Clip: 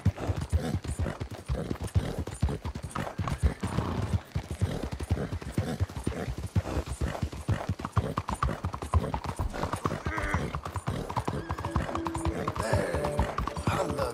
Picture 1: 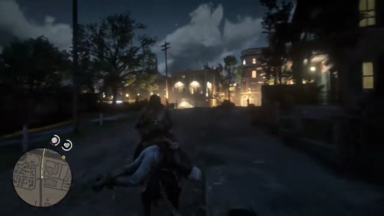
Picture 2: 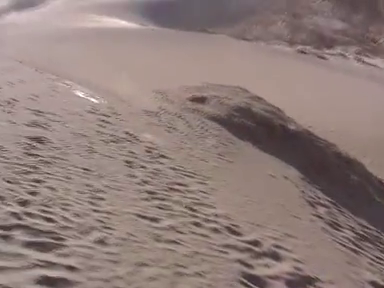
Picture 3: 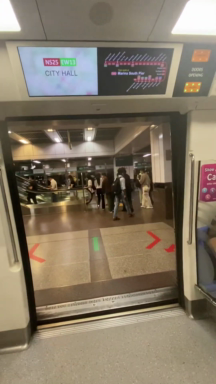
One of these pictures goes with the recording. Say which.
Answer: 1